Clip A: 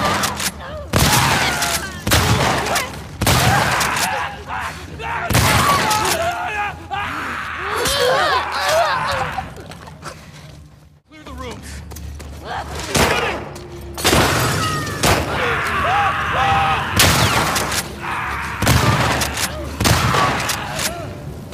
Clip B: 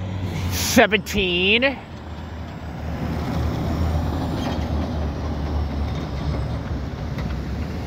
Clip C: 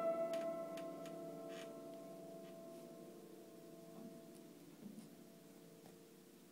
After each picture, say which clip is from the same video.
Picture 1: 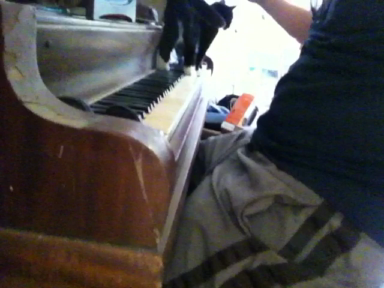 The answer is C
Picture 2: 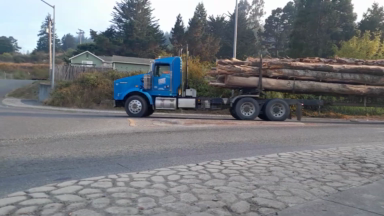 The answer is B